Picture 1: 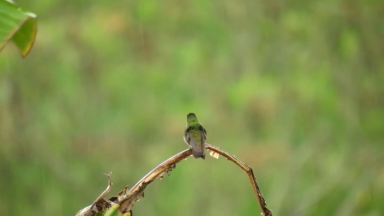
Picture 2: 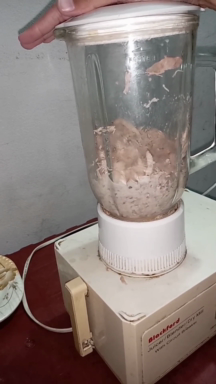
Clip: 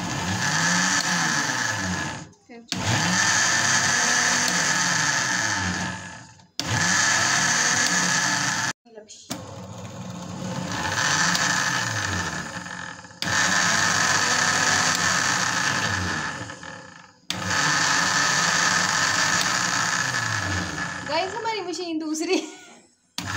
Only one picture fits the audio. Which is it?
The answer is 2